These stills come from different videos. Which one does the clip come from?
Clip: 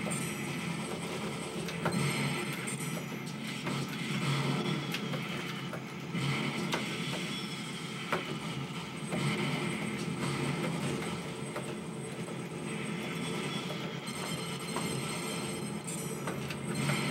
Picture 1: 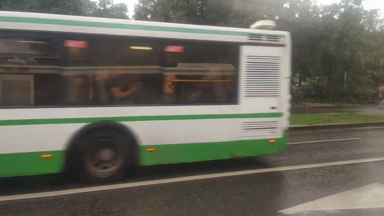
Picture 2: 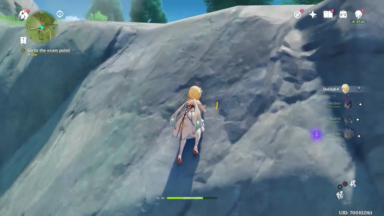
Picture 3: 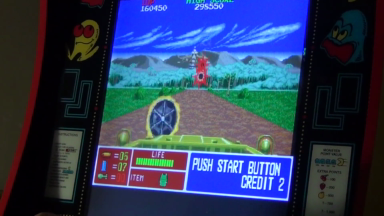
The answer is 3